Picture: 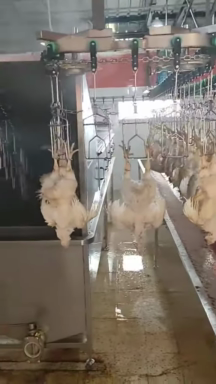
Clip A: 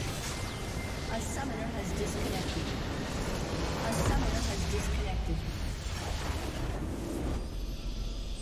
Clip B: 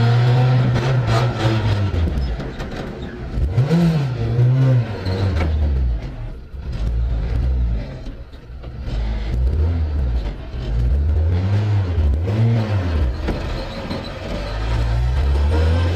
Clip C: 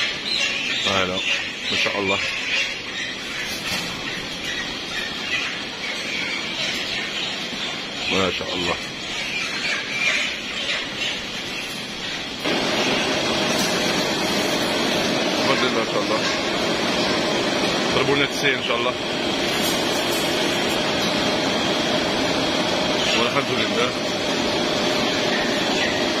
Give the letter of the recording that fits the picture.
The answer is C